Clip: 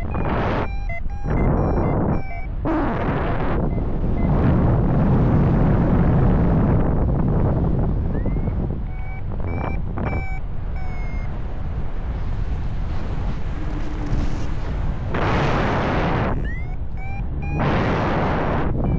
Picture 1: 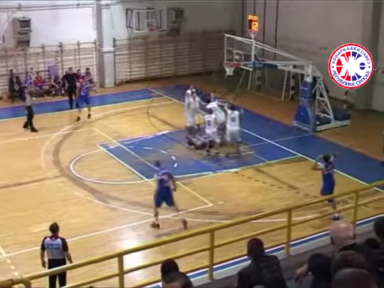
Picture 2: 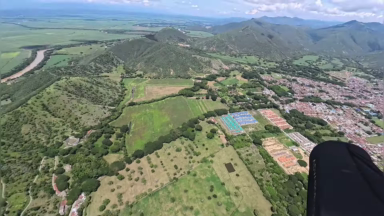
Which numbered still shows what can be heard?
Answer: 2